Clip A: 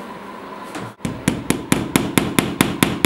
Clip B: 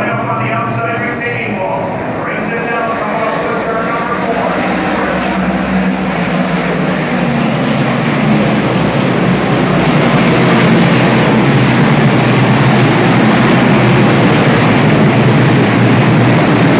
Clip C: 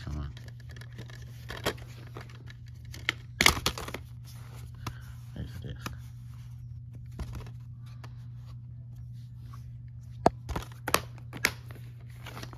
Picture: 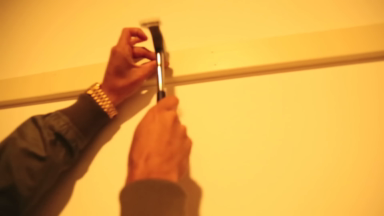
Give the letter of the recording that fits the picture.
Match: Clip A